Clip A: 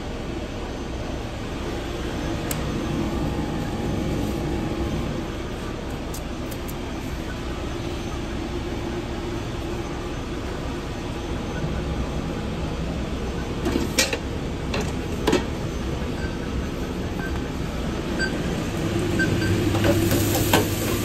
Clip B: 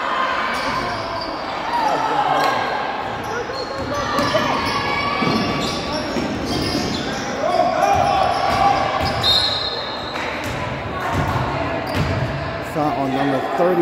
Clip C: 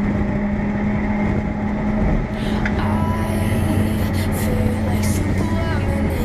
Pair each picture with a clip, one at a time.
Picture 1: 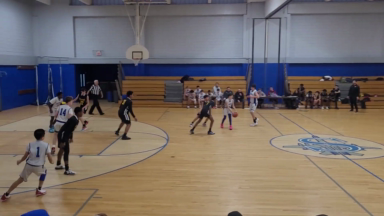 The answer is B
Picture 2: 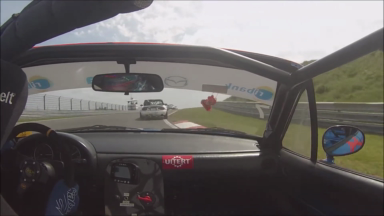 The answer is C